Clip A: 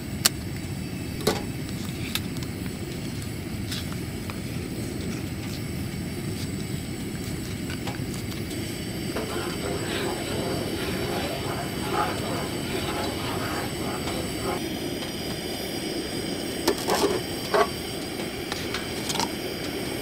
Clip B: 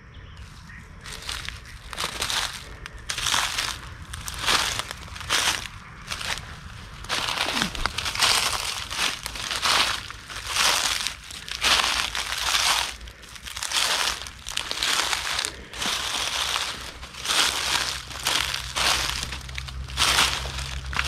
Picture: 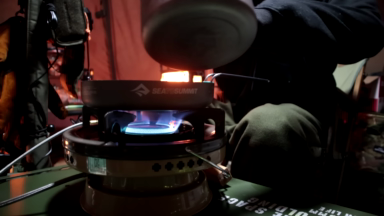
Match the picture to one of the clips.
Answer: A